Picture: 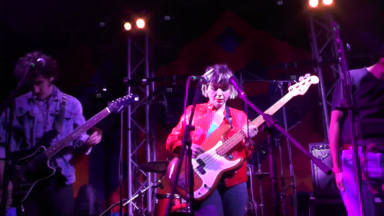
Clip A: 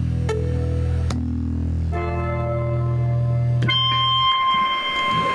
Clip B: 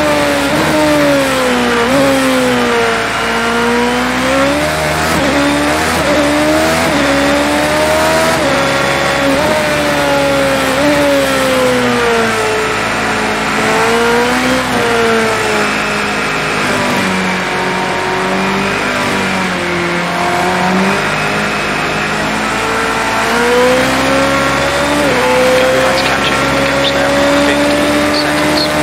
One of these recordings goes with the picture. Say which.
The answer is A